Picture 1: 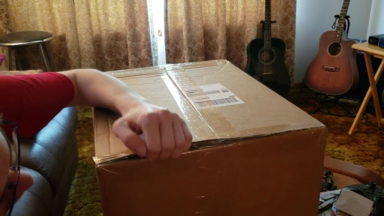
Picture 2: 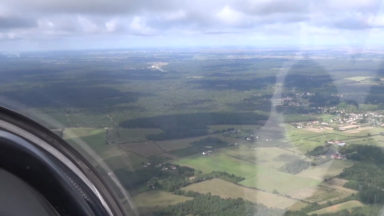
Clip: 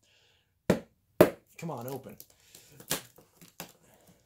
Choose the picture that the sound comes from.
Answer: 1